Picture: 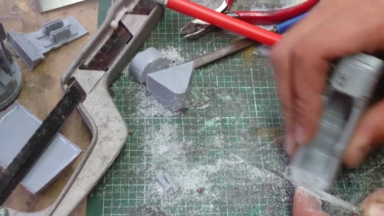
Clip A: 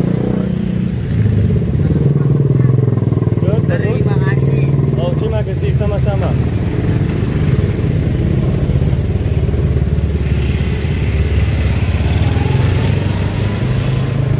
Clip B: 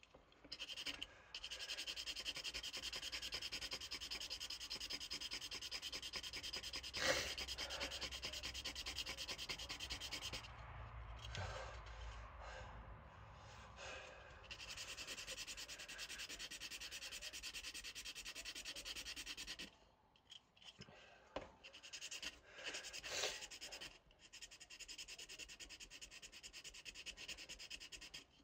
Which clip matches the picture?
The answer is B